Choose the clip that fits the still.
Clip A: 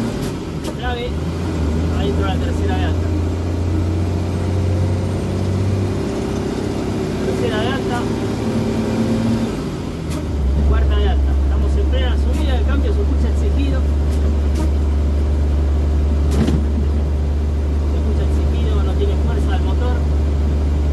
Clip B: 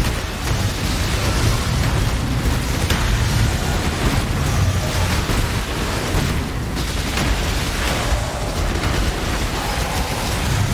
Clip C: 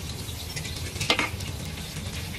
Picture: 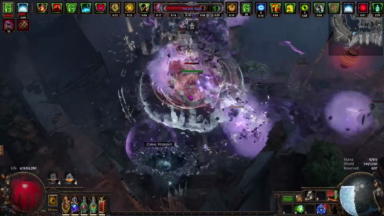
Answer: B